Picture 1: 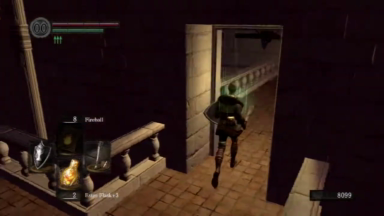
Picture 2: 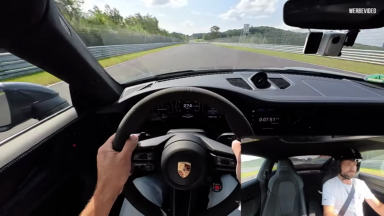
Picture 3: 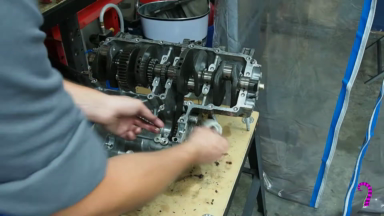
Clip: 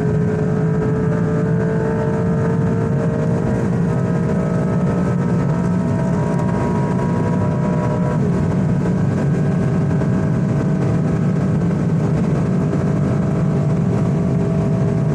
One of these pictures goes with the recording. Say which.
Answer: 2